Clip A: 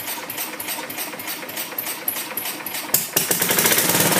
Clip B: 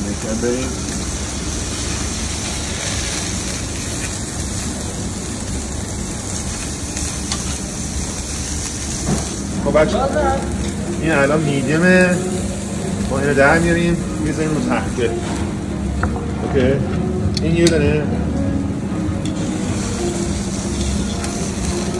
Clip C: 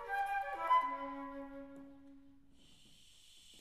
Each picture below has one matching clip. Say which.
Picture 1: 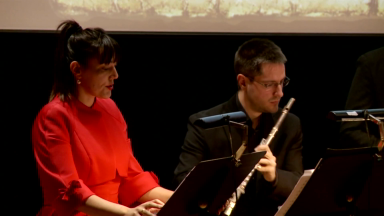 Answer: C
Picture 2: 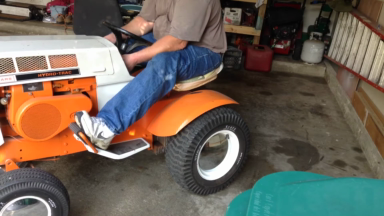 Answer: A